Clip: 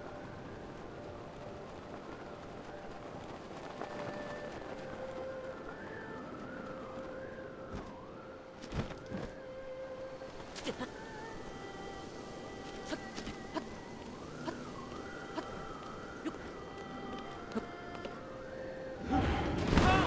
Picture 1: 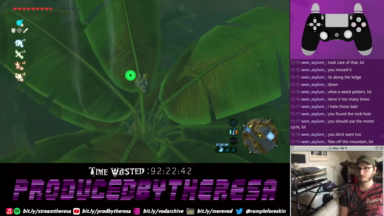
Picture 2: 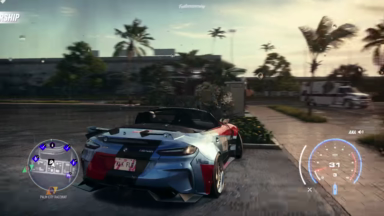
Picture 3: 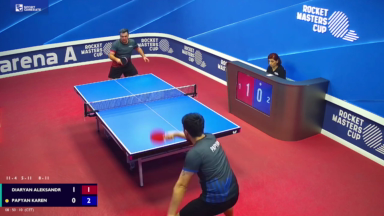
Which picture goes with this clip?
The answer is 1